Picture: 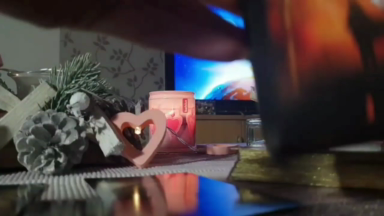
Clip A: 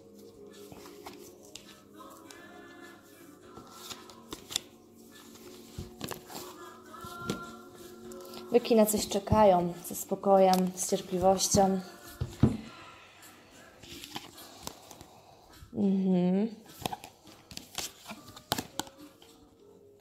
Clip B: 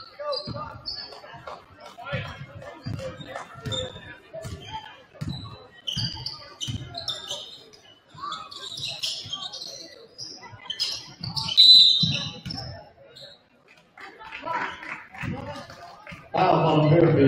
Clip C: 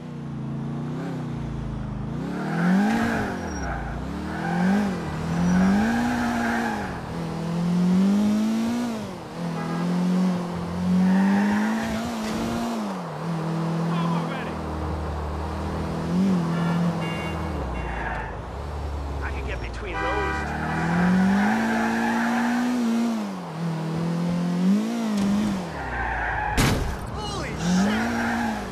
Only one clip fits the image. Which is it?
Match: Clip A